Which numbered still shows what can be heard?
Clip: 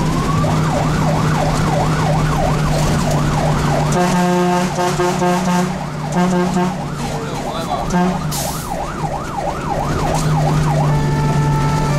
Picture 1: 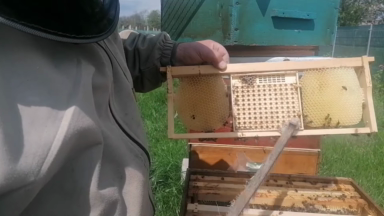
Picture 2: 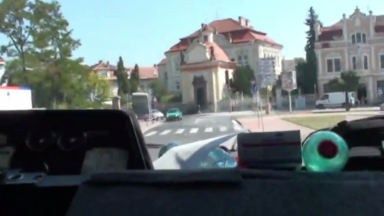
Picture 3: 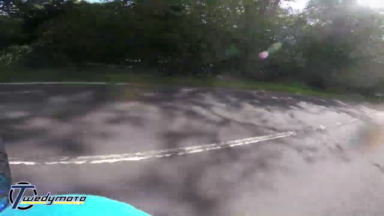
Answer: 2